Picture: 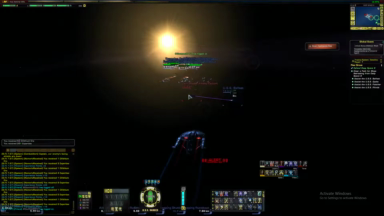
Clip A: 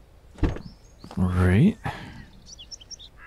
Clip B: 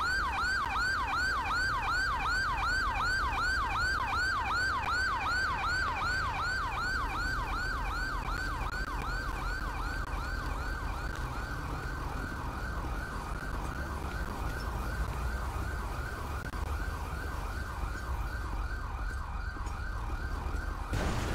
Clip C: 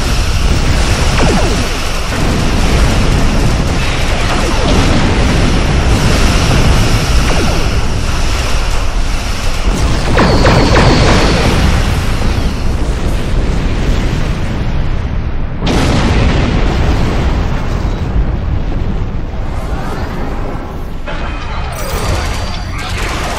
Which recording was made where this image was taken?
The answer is C